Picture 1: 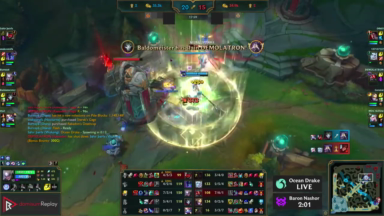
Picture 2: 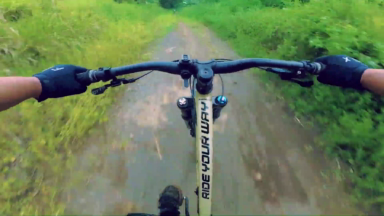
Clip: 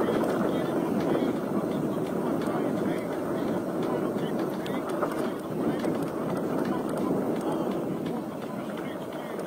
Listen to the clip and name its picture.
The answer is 2